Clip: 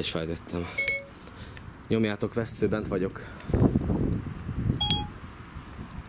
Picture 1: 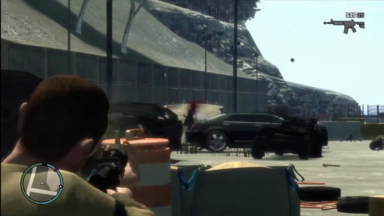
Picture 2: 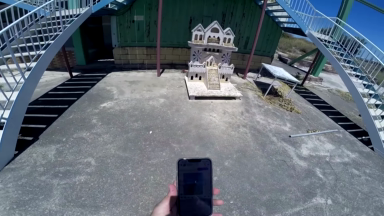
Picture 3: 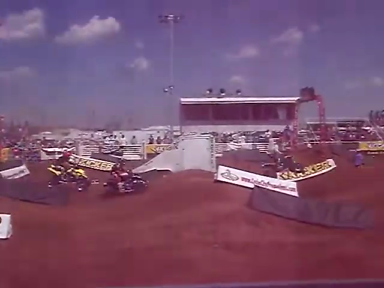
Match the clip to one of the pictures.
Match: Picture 2